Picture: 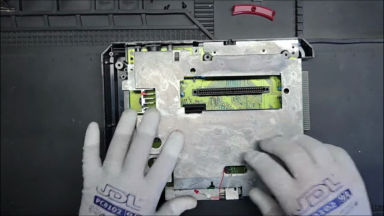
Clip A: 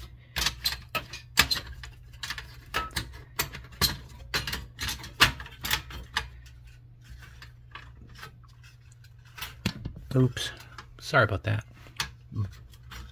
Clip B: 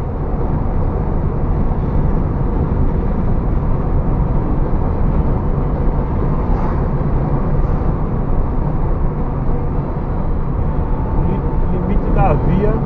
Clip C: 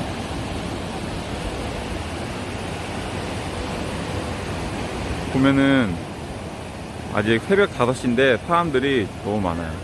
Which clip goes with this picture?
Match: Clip A